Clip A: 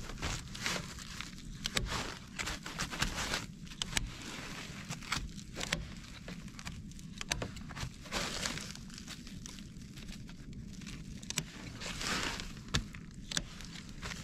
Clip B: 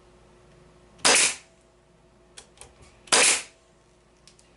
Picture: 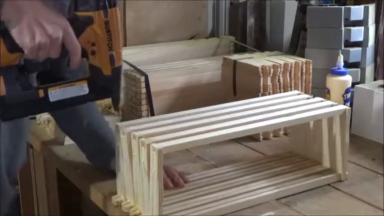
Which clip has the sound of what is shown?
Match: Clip B